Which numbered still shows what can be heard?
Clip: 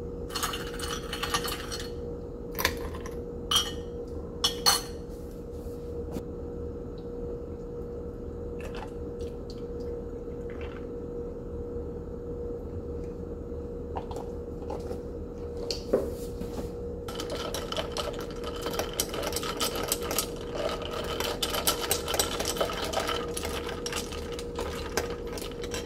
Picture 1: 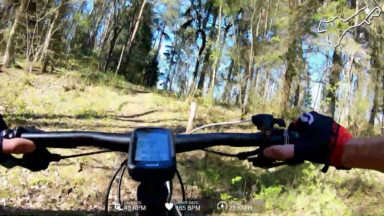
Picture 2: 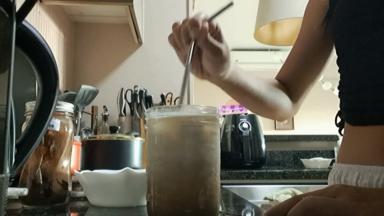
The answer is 2